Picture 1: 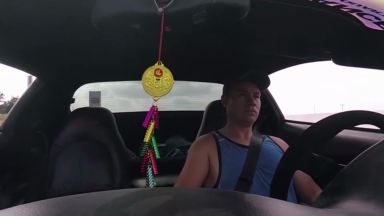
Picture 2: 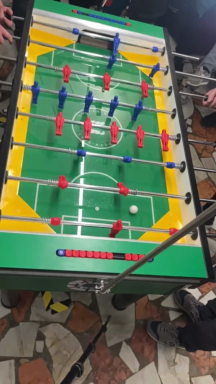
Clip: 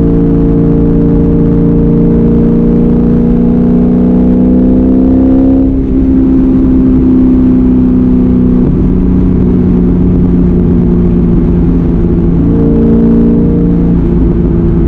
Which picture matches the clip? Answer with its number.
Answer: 1